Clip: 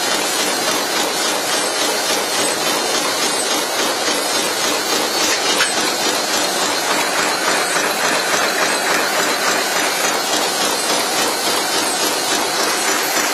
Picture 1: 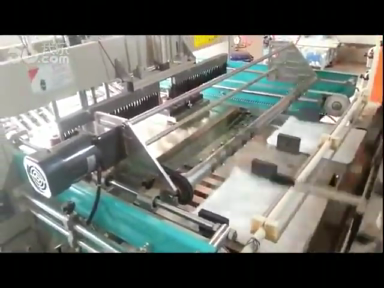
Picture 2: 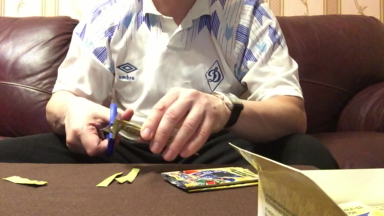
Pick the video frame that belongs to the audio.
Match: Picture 1